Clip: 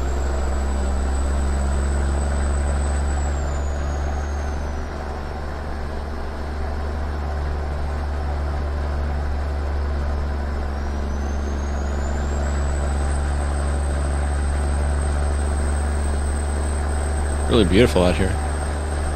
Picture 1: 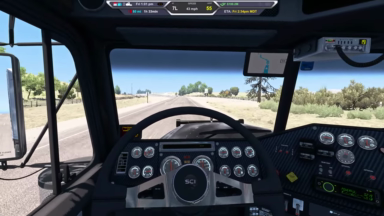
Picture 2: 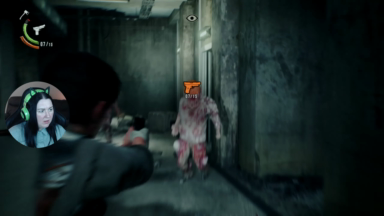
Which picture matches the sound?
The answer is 1